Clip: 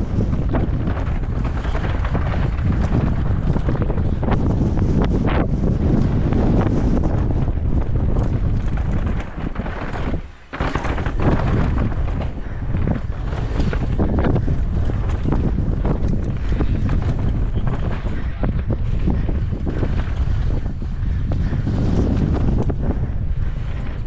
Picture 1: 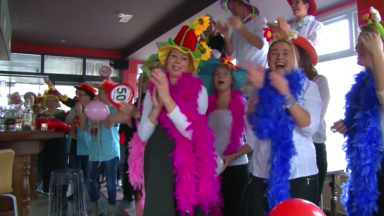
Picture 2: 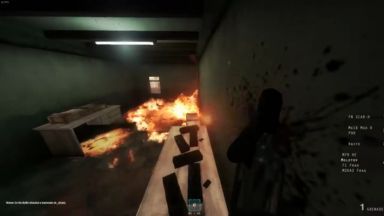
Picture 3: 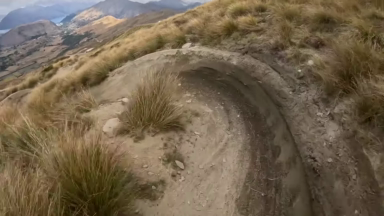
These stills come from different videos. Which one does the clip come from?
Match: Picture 3